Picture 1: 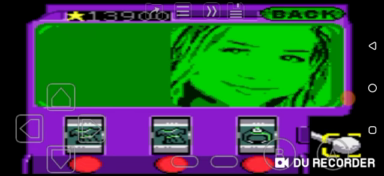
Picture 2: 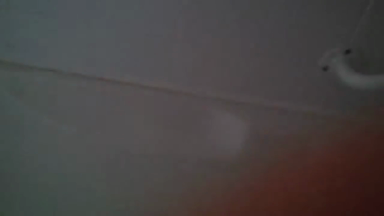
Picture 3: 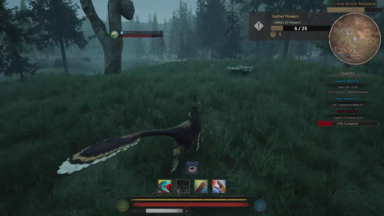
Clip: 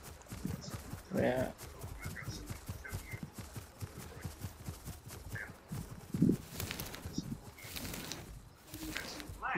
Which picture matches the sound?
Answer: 3